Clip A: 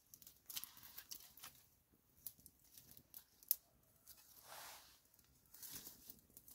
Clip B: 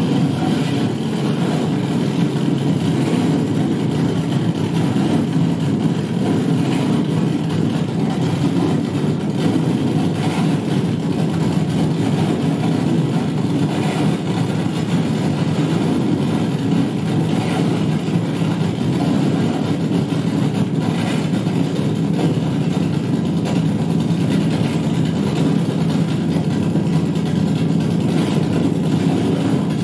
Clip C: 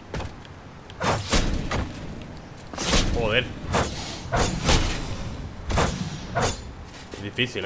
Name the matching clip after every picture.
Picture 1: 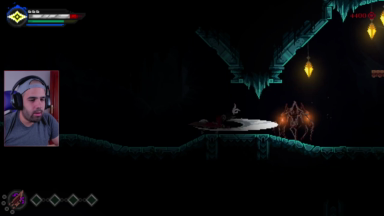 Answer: C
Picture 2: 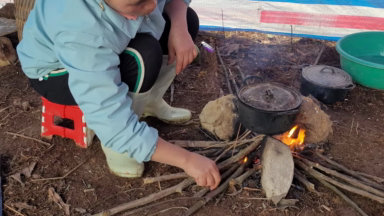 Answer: A